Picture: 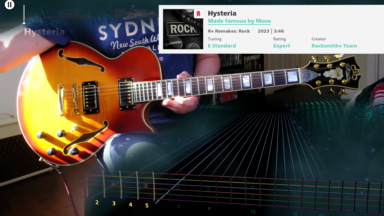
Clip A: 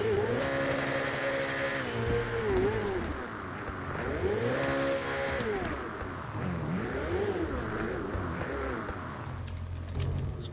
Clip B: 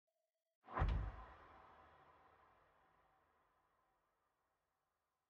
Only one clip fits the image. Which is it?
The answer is B